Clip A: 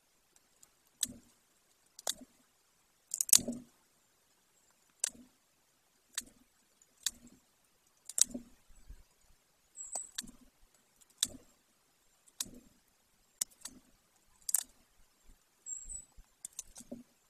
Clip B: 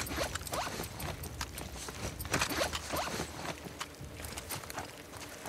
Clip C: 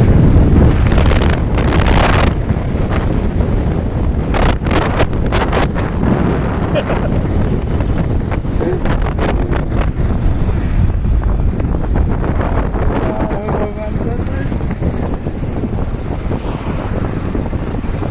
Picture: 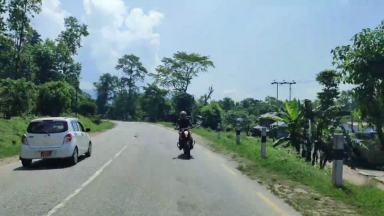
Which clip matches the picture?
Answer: C